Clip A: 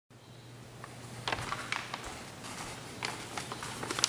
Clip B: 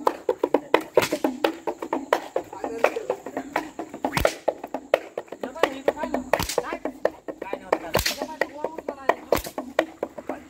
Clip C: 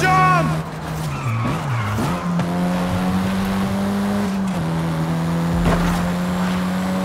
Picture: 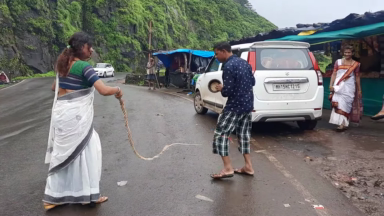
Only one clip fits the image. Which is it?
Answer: B